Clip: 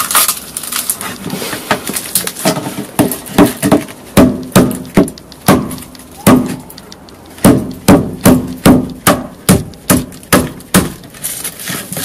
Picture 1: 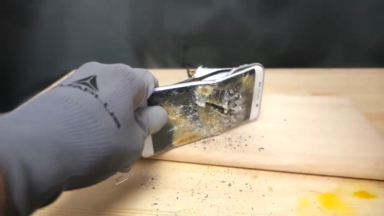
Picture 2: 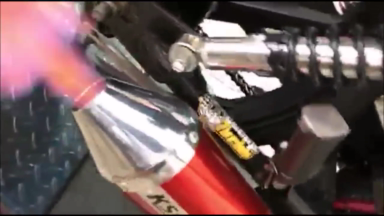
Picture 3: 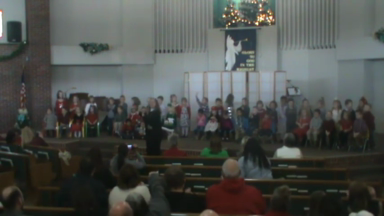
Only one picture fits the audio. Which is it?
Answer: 1